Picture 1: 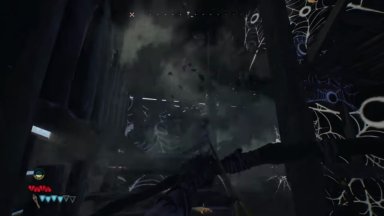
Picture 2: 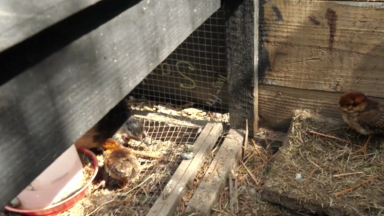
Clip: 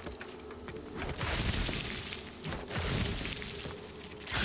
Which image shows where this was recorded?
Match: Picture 1